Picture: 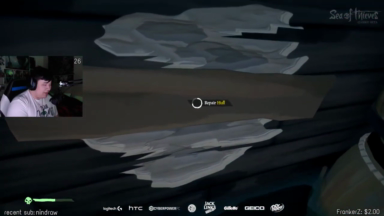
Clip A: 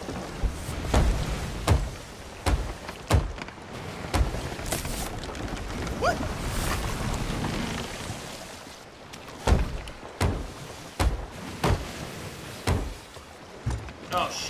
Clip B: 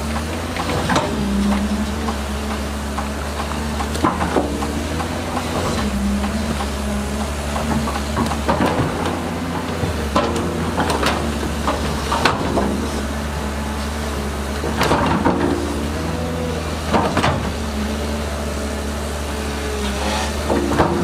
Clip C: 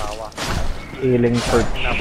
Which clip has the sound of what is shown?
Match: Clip A